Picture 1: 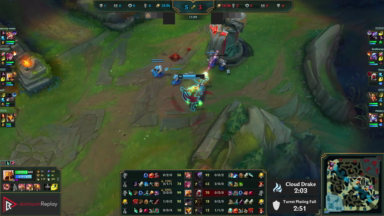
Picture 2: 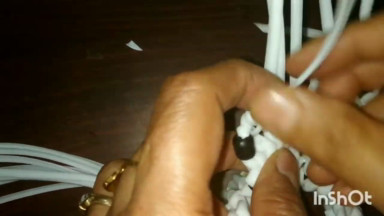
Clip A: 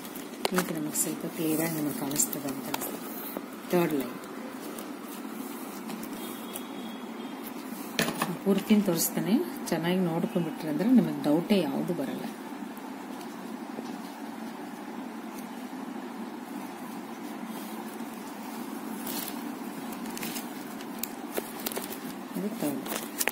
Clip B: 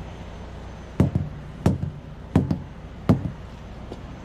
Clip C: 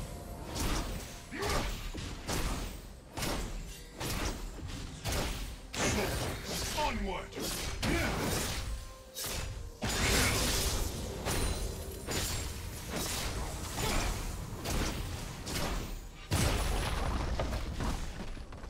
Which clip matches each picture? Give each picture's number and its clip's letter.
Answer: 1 C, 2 A